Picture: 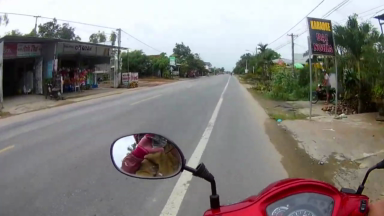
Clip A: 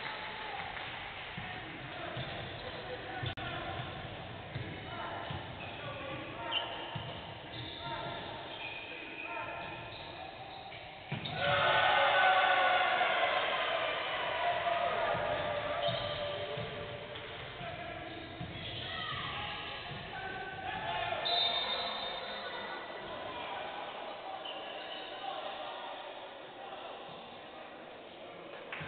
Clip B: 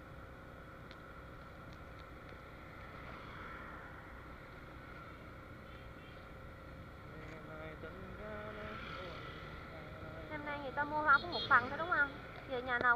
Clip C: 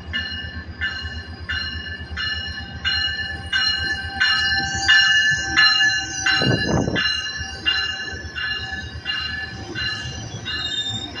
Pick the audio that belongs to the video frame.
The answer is B